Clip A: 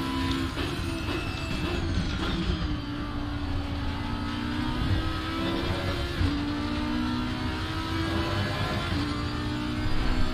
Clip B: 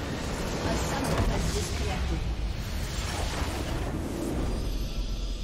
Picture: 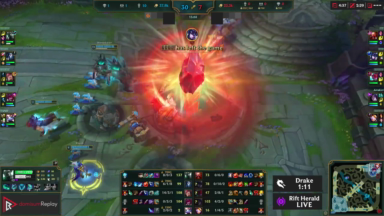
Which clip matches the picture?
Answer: B